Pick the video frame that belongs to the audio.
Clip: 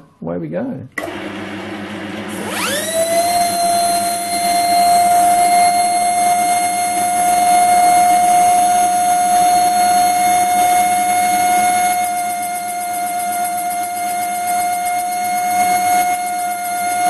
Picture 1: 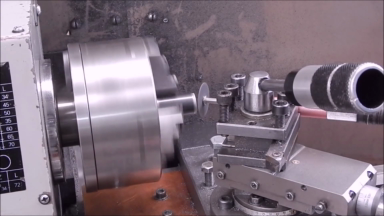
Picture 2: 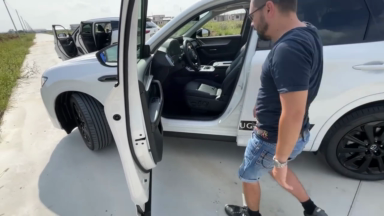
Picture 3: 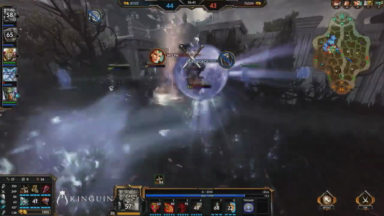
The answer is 1